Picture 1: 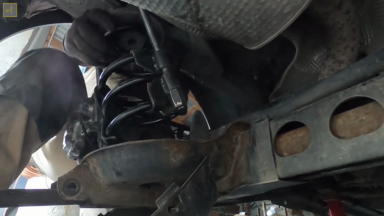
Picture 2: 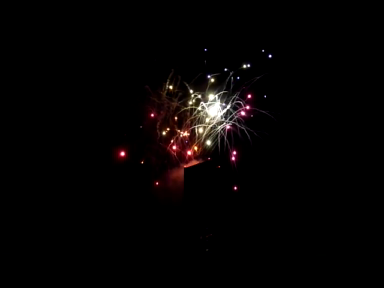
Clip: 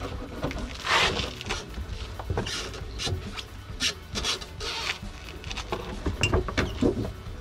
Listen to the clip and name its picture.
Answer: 1